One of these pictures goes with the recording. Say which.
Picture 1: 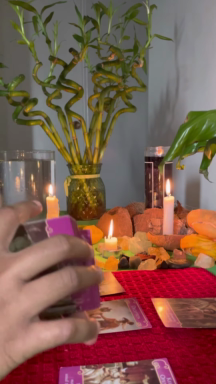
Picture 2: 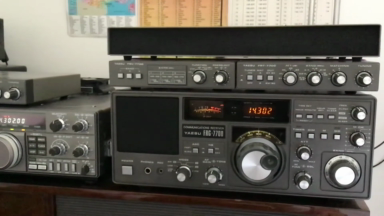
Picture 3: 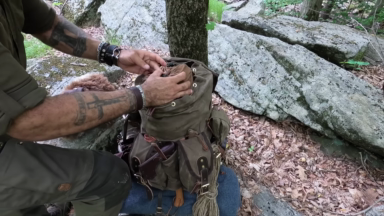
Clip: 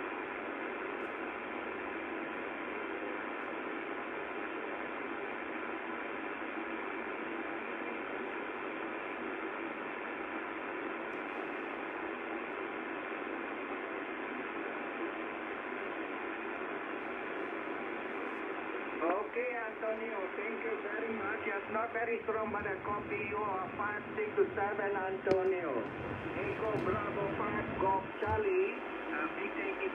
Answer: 2